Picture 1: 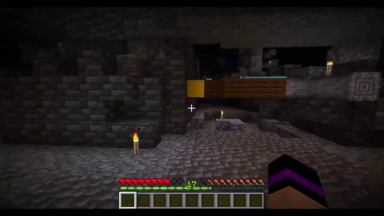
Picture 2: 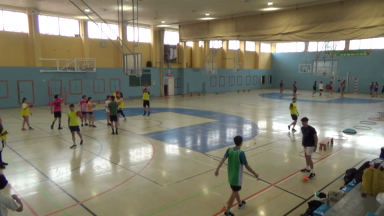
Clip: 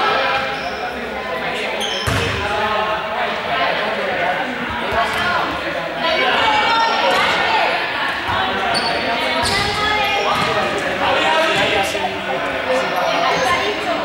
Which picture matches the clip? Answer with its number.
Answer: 2